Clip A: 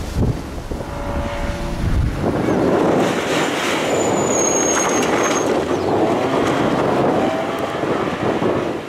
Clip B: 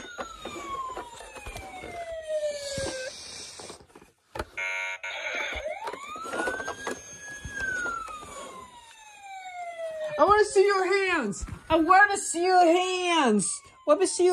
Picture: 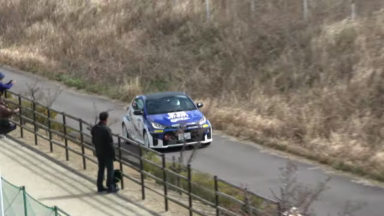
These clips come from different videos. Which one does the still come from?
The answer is A